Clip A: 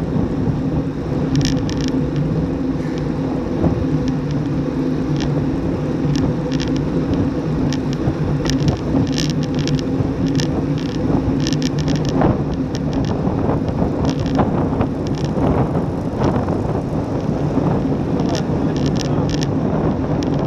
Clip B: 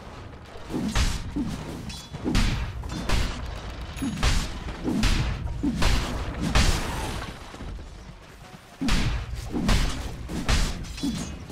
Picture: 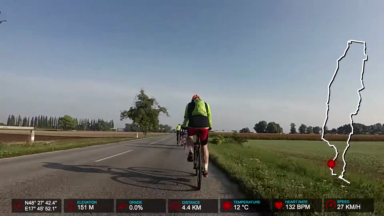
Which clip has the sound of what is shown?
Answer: A